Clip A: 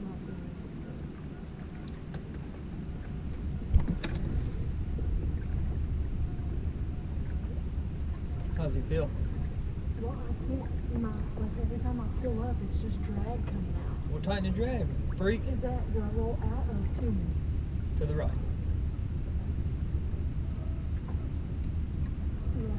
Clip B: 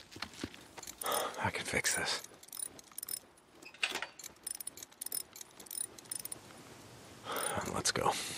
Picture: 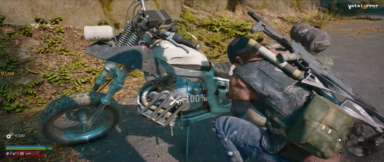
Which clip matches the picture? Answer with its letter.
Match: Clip B